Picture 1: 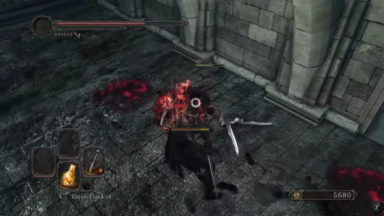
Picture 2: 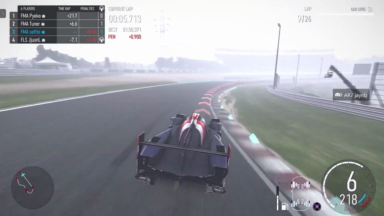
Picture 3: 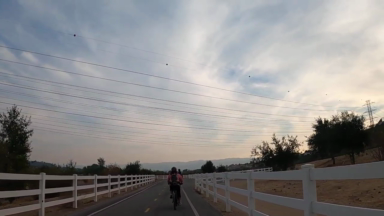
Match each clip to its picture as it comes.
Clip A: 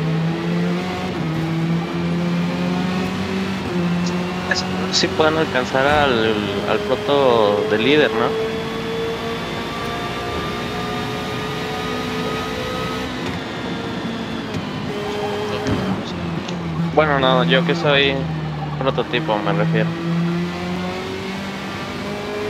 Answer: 2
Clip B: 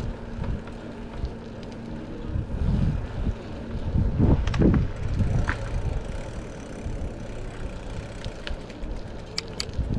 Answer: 3